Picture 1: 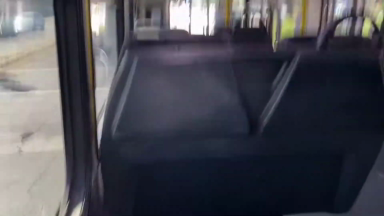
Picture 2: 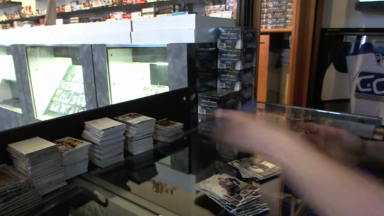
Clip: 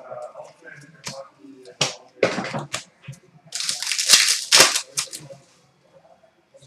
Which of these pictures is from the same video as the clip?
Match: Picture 2